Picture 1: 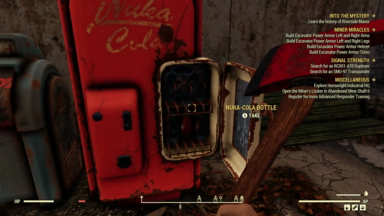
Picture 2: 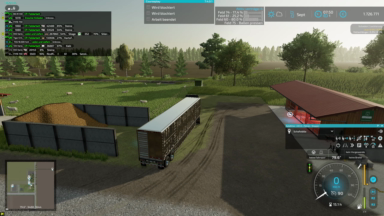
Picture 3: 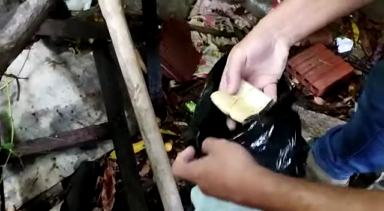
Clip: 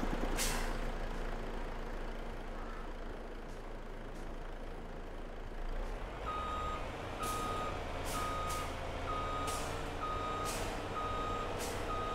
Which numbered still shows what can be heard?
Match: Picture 2